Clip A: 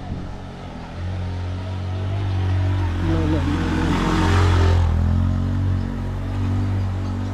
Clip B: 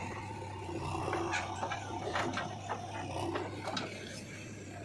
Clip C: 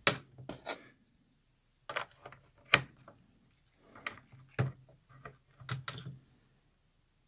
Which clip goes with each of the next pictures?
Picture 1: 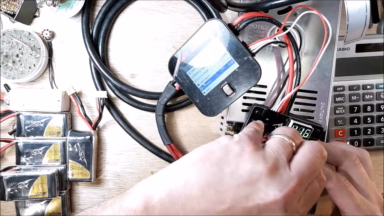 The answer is C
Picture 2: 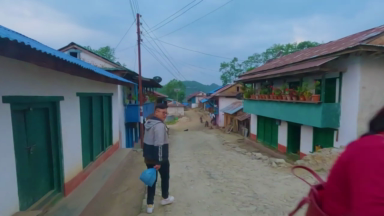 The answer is A